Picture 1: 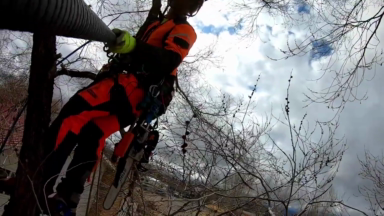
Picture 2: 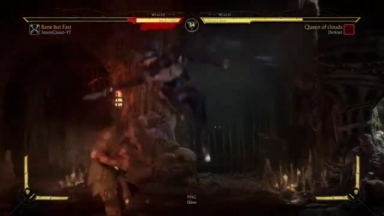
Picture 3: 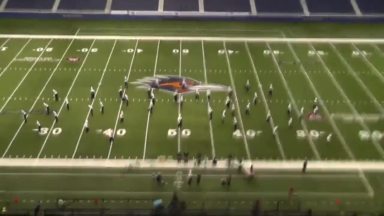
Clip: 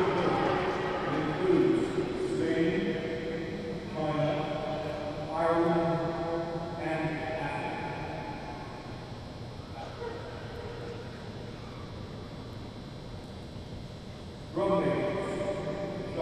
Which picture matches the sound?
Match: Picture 3